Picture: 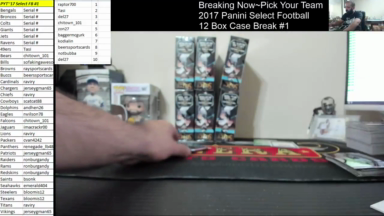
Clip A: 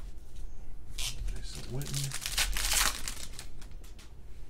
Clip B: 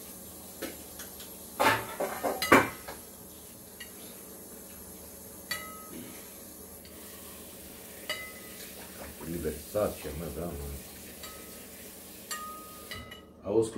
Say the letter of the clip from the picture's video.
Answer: A